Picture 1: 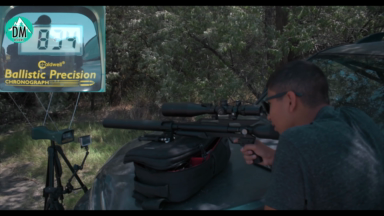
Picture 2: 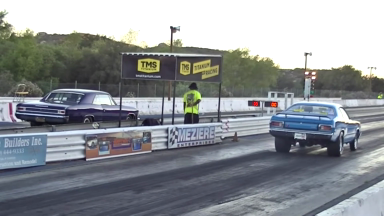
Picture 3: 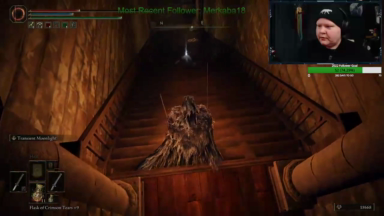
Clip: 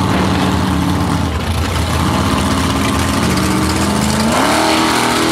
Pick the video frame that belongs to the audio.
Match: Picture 2